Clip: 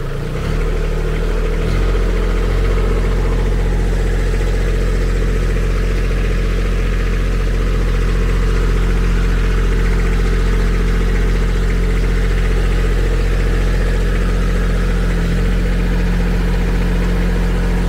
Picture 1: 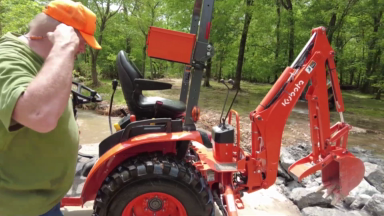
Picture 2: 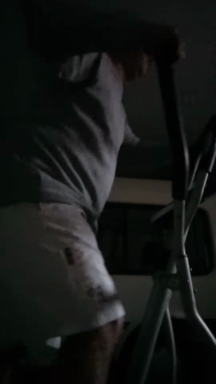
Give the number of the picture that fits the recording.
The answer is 1